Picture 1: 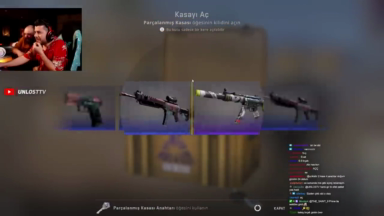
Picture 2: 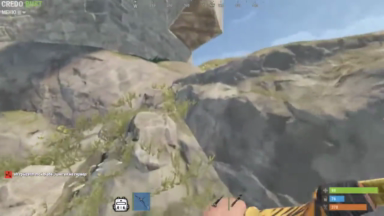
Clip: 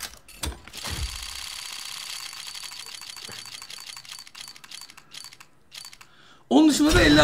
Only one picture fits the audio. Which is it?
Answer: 1